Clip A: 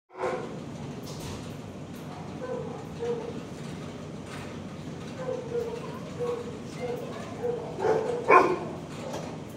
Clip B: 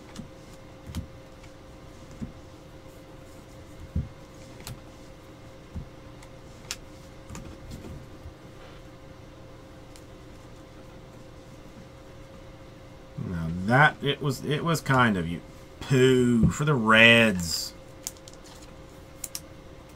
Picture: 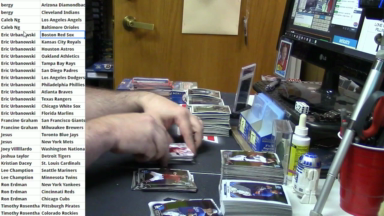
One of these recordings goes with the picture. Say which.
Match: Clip B